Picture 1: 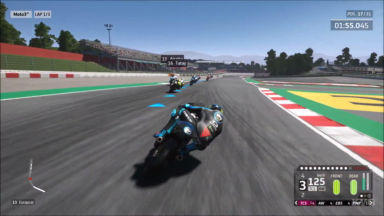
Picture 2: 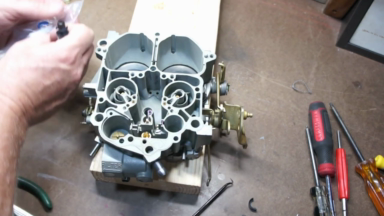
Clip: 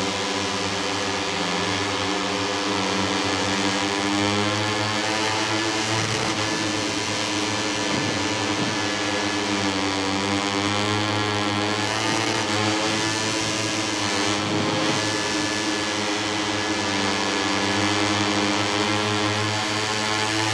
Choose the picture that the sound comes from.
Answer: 1